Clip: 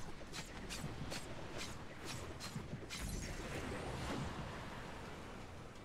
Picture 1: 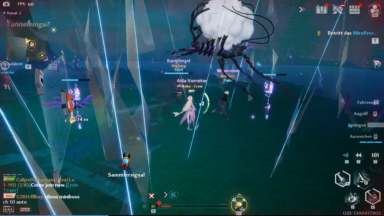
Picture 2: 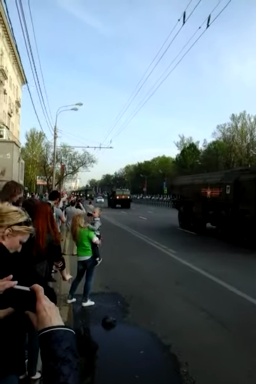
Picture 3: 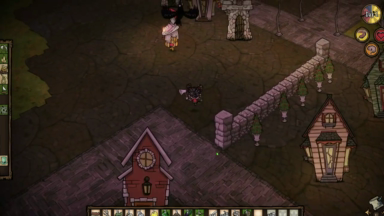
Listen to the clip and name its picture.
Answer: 1